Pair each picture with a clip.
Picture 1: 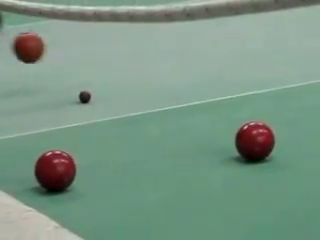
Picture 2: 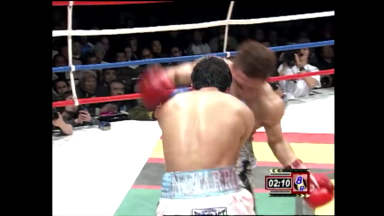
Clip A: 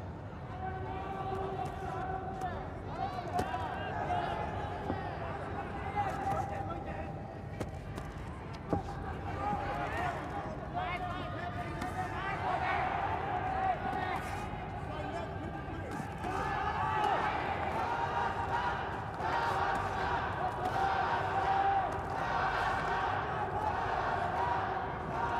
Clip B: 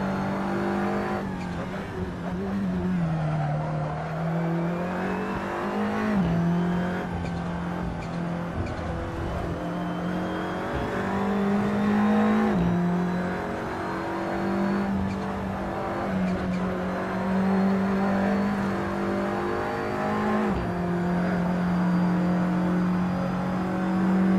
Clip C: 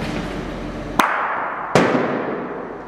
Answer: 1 C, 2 A